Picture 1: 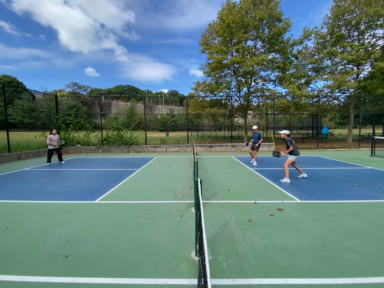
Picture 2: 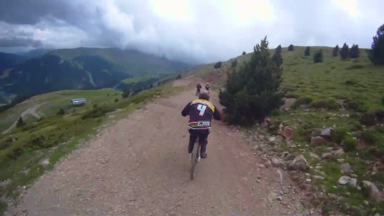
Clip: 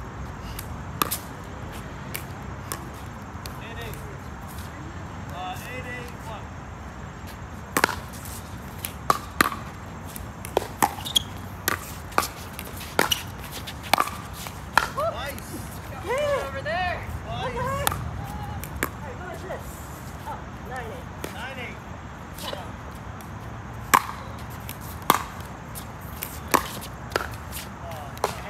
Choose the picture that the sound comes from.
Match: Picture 1